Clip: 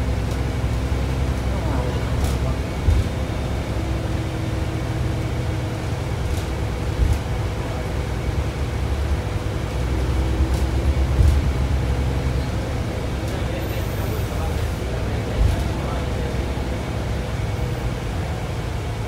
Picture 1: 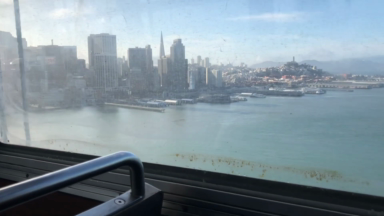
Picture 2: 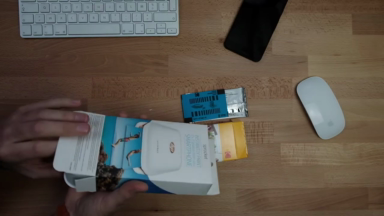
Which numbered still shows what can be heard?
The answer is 1